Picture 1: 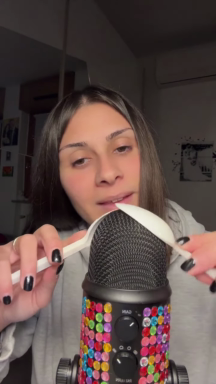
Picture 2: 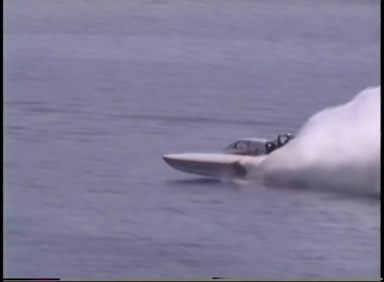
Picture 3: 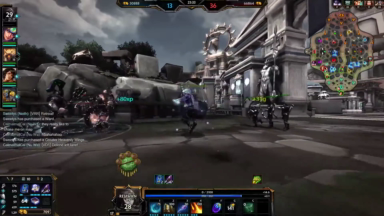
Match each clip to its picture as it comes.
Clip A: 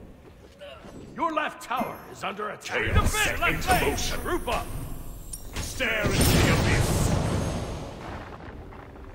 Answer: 3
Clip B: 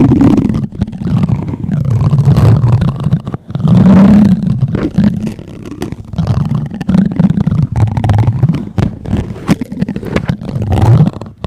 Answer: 1